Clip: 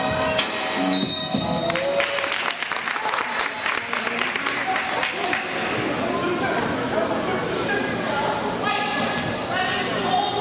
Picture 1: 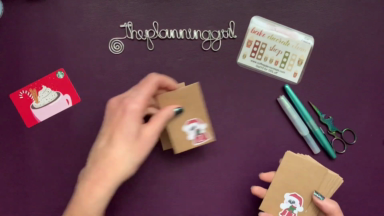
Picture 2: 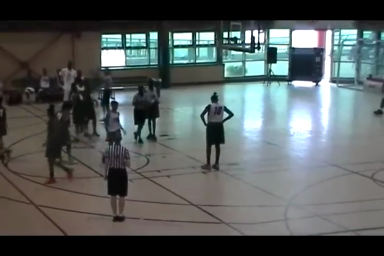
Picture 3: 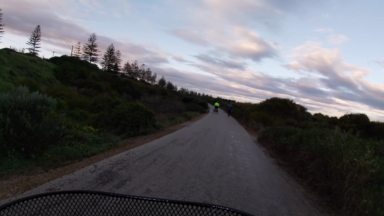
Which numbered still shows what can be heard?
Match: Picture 2